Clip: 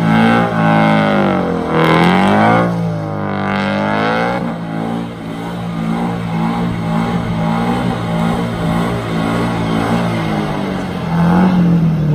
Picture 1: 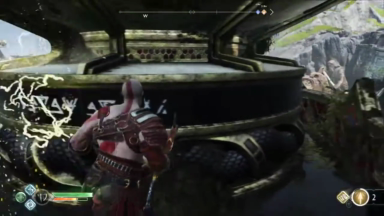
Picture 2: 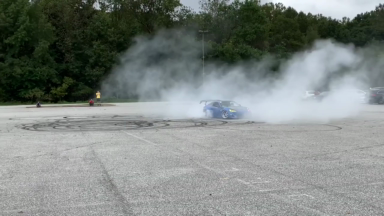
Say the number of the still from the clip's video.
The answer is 2